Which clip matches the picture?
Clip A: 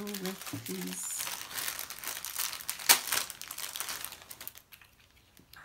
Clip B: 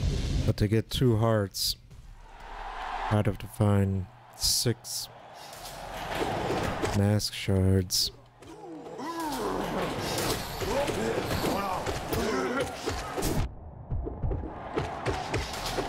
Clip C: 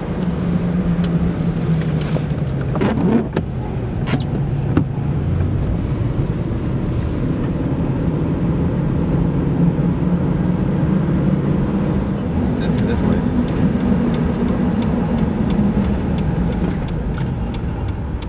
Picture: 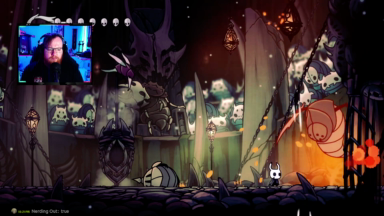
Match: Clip B